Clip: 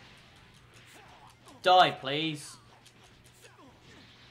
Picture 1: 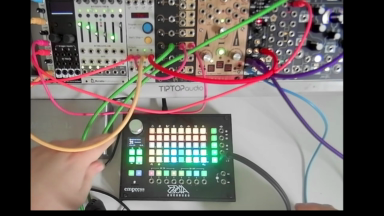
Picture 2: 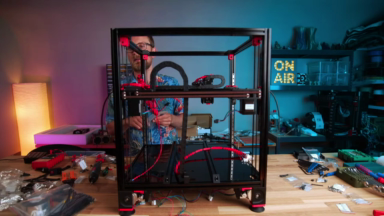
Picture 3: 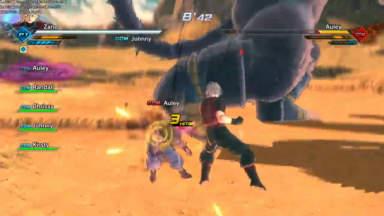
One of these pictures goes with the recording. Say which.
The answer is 3